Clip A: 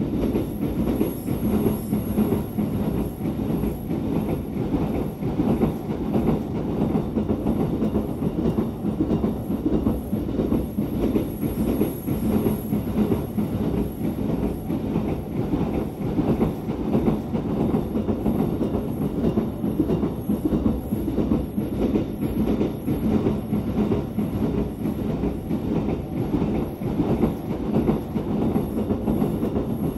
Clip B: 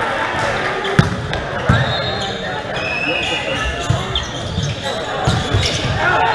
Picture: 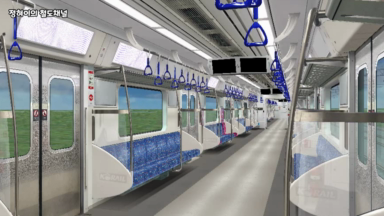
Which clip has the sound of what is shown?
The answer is A